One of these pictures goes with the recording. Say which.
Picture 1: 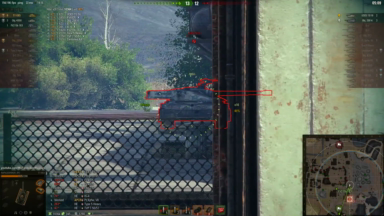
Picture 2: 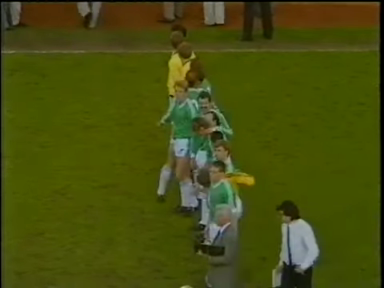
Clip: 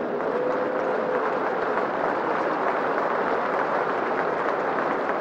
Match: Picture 2